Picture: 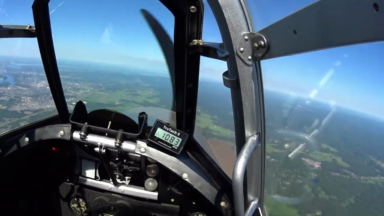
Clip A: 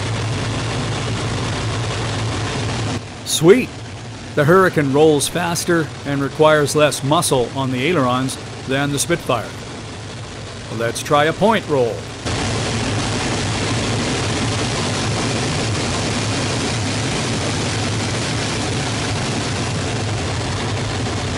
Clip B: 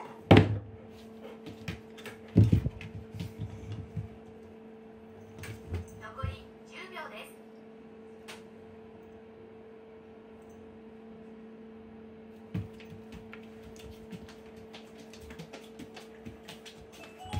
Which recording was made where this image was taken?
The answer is A